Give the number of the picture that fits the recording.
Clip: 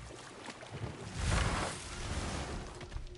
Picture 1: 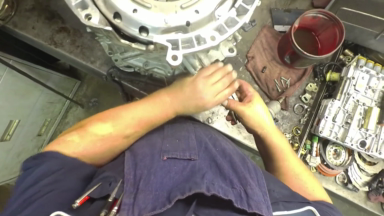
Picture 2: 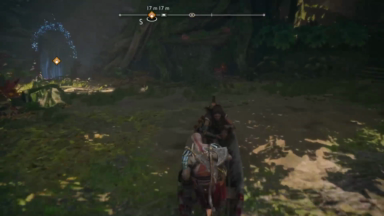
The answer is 2